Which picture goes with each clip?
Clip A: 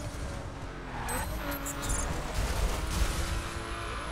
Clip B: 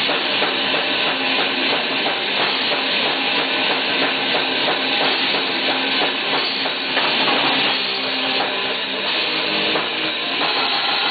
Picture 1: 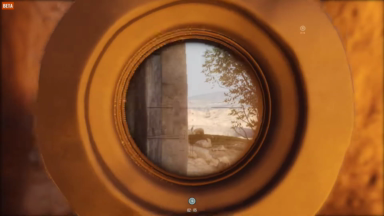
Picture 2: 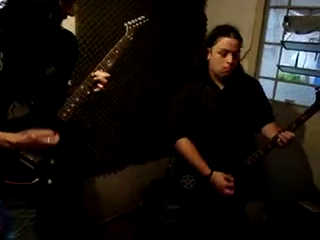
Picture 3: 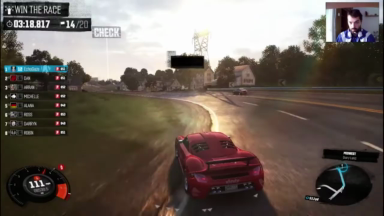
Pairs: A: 3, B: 2